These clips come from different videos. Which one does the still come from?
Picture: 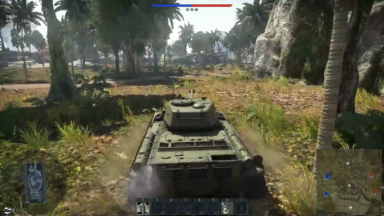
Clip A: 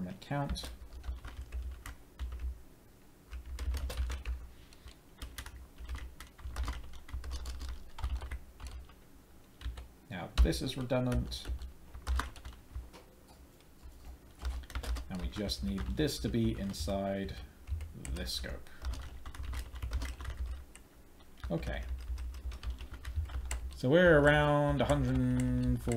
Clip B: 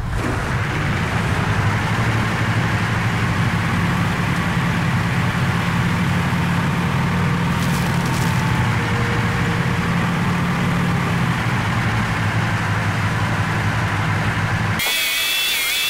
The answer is B